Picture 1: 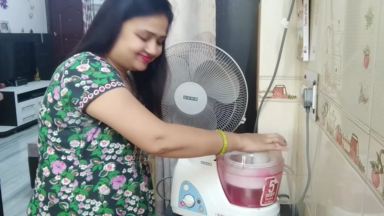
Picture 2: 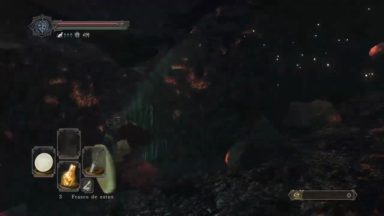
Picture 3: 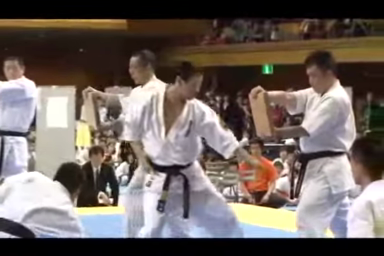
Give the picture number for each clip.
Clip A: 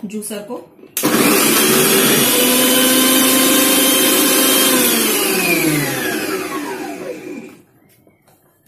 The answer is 1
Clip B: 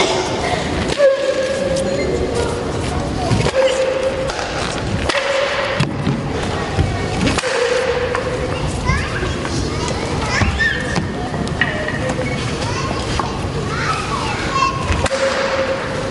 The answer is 3